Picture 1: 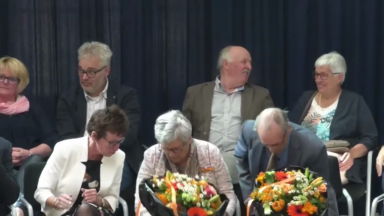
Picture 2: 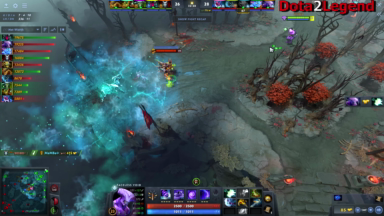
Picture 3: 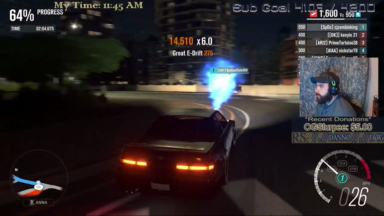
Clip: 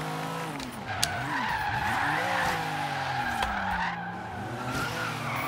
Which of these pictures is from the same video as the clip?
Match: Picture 3